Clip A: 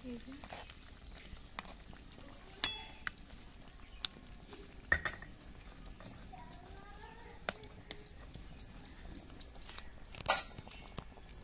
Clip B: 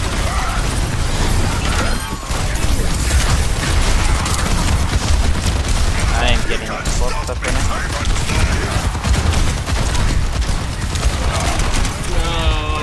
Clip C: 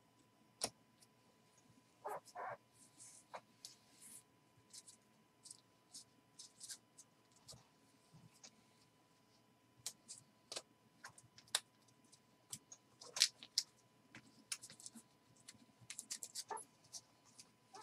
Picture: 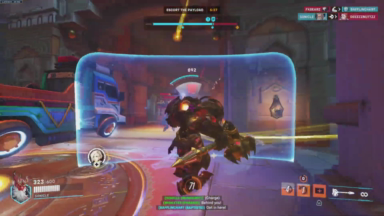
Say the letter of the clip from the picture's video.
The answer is B